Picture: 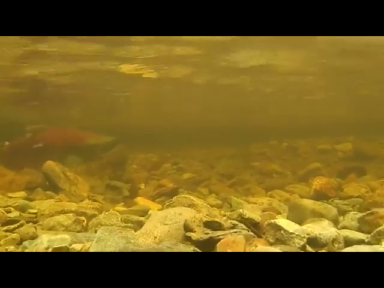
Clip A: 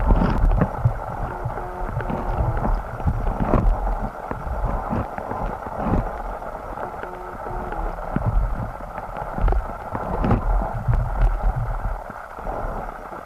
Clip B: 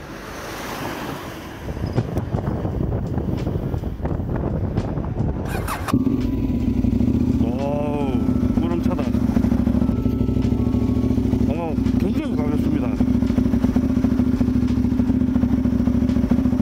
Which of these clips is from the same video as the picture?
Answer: A